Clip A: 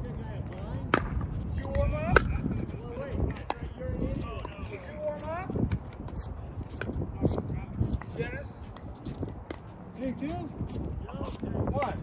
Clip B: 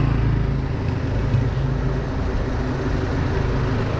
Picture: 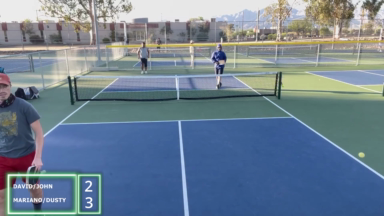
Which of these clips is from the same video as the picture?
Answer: A